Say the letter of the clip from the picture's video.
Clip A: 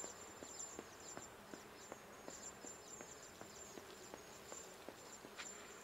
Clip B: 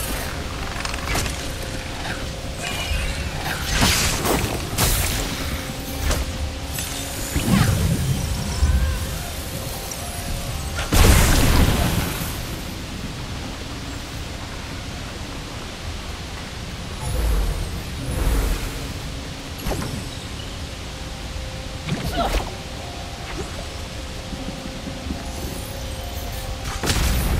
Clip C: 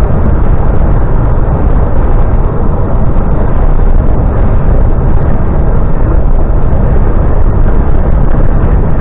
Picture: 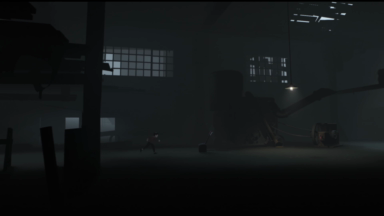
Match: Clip A